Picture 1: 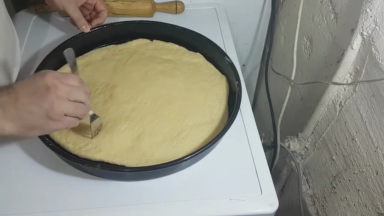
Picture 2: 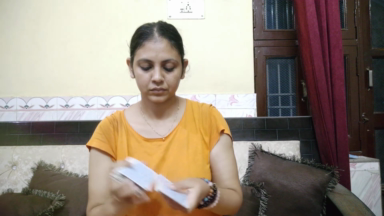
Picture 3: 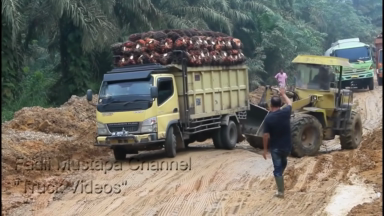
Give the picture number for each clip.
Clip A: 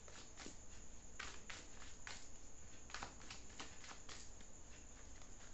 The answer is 2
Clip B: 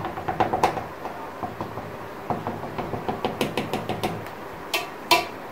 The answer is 1